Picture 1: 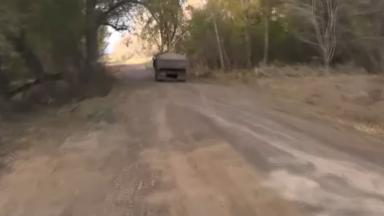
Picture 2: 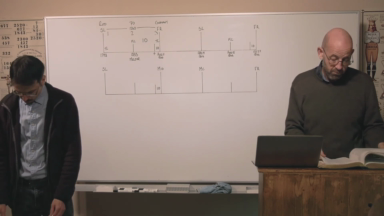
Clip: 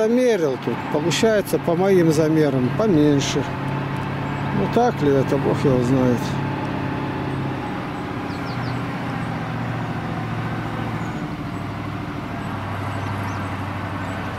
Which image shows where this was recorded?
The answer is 1